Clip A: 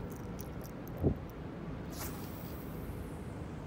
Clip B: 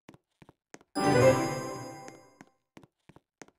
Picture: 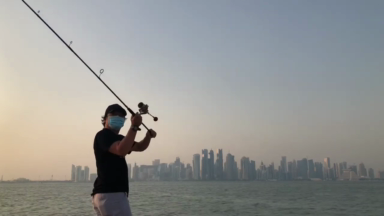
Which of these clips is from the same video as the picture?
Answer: A